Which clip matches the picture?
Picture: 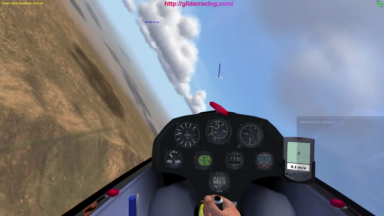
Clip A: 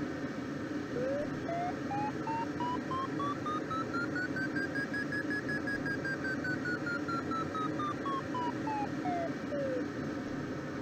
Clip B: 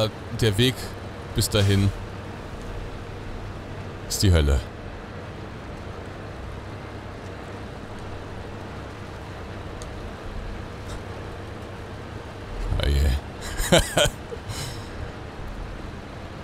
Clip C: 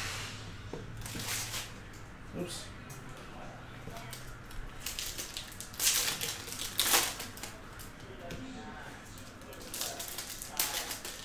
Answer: A